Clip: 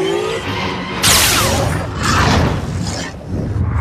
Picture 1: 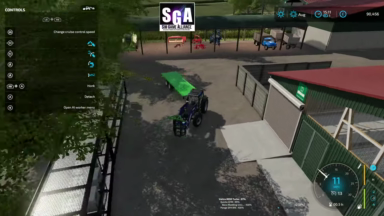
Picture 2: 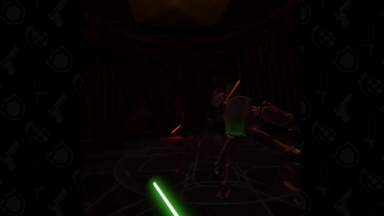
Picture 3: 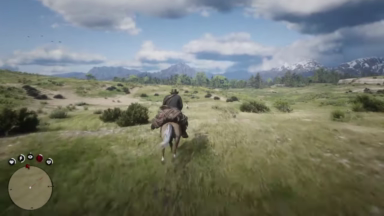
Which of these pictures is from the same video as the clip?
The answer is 2